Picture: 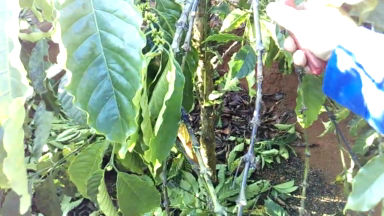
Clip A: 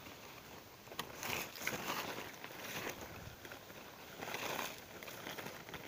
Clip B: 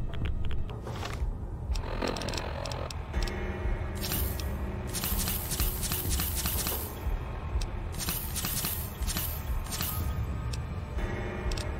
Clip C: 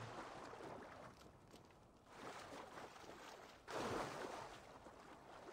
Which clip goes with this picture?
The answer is A